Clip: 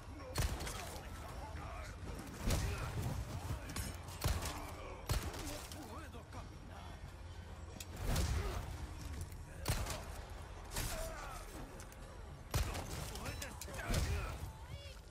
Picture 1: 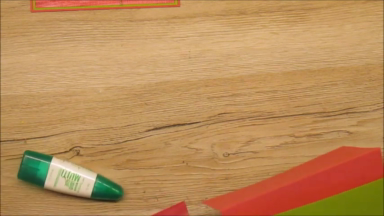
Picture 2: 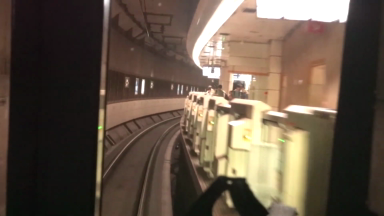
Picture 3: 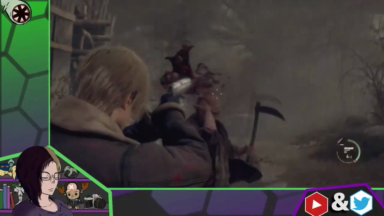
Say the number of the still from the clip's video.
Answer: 3